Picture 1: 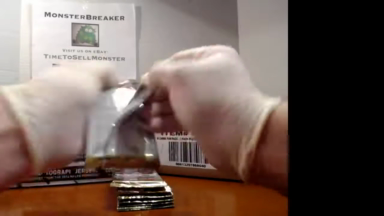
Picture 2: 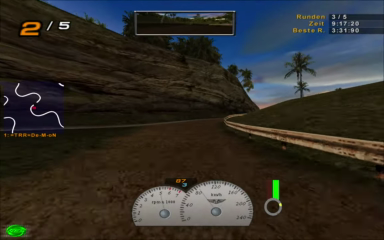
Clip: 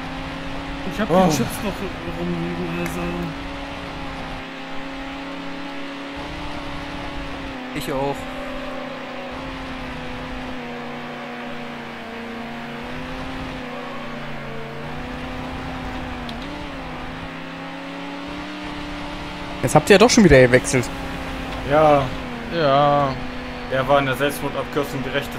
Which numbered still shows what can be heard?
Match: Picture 2